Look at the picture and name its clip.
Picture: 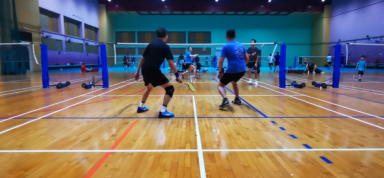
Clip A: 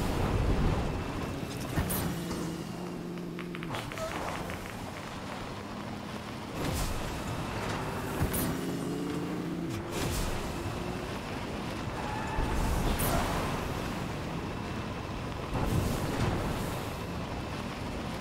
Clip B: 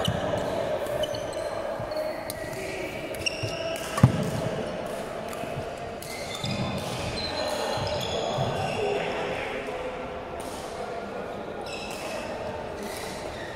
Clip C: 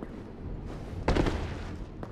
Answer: B